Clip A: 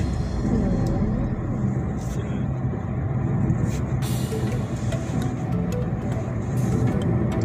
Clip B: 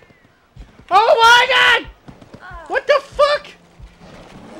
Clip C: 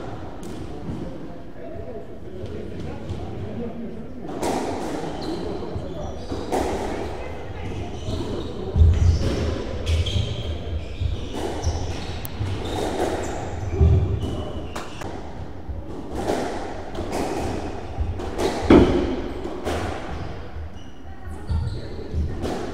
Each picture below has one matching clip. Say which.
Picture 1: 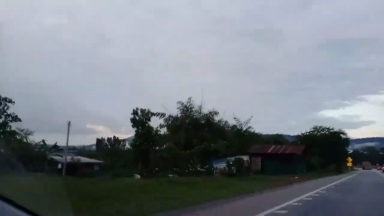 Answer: A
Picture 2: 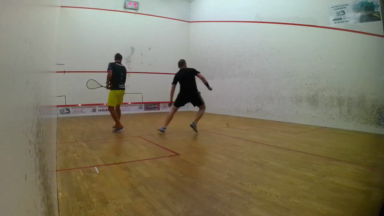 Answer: C